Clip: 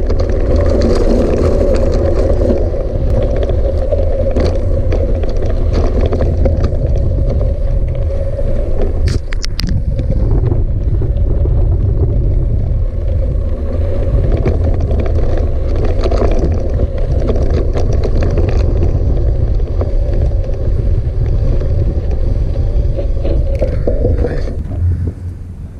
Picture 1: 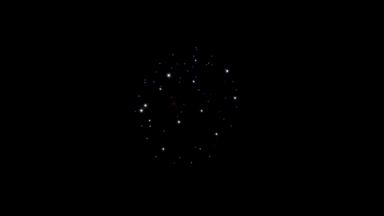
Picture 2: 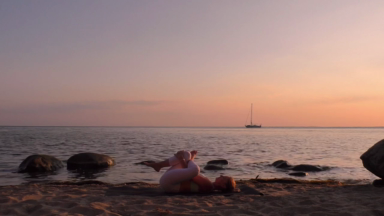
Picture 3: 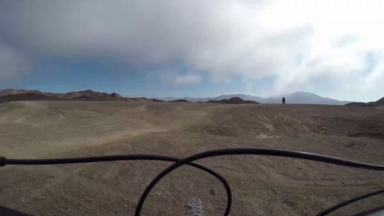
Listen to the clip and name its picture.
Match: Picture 3